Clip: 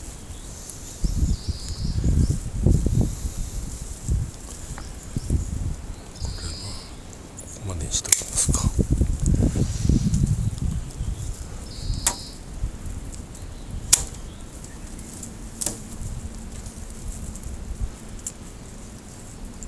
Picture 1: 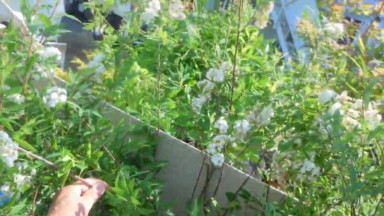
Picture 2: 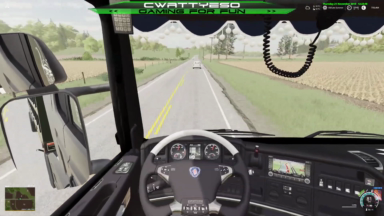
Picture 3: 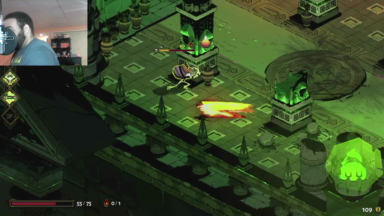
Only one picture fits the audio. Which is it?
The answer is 1